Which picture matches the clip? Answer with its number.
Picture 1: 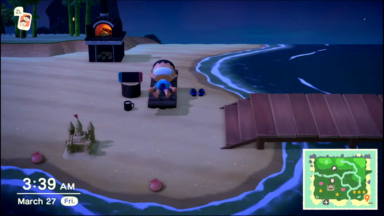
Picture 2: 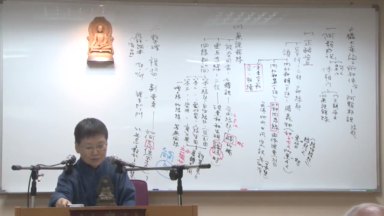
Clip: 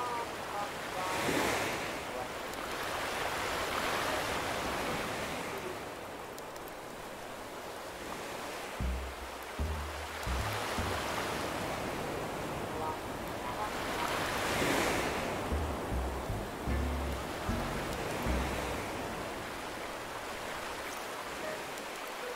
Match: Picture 1